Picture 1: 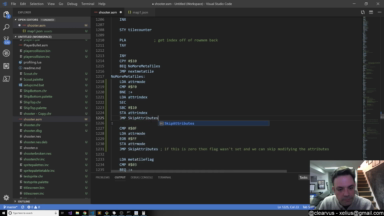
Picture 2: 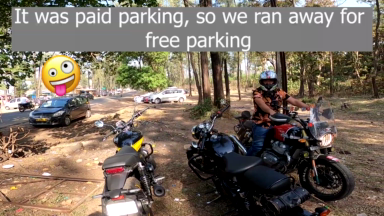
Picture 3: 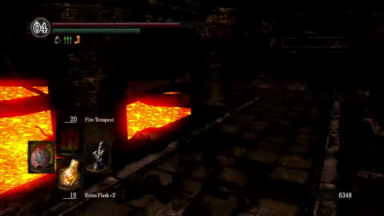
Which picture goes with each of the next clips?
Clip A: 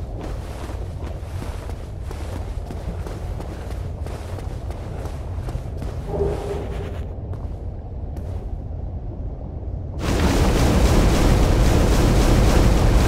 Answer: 3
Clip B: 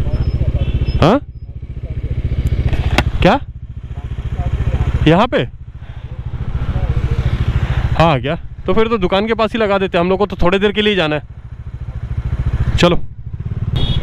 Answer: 2